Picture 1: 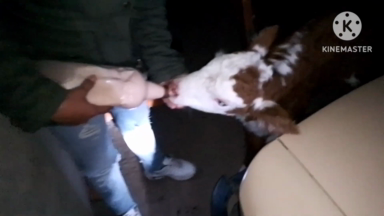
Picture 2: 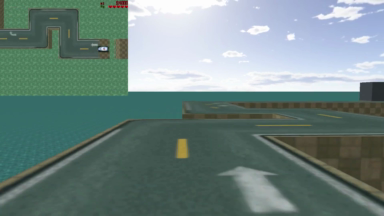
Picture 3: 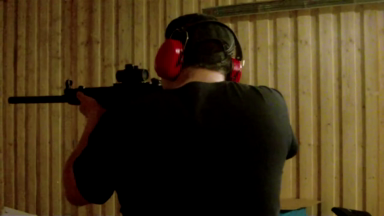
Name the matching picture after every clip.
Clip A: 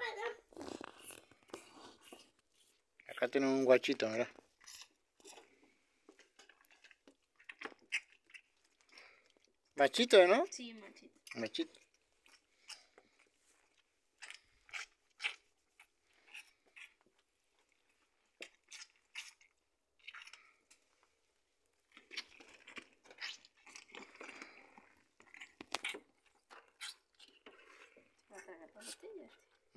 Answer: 1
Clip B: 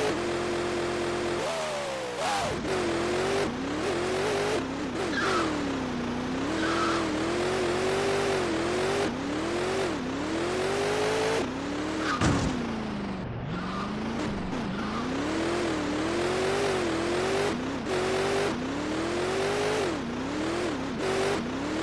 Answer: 2